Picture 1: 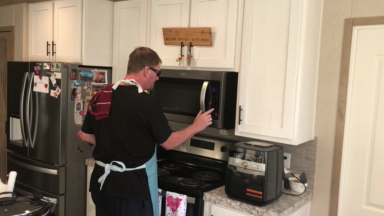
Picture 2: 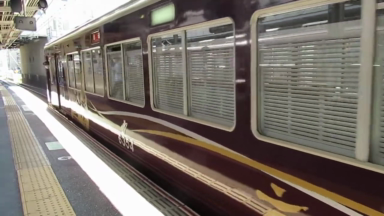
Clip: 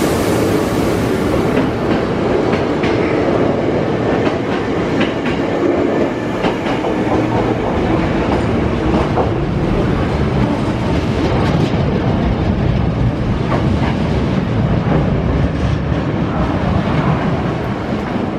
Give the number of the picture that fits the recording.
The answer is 2